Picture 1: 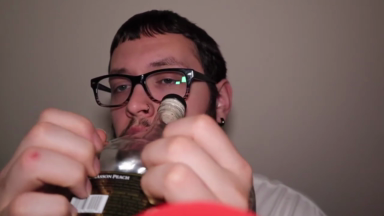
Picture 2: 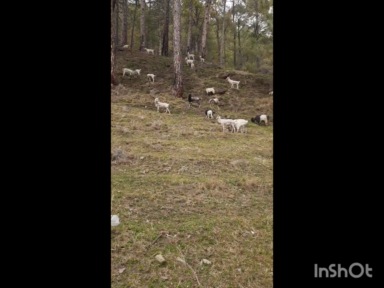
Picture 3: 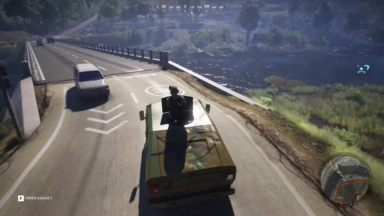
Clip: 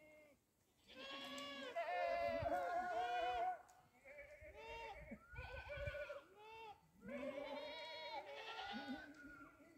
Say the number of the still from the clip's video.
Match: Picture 2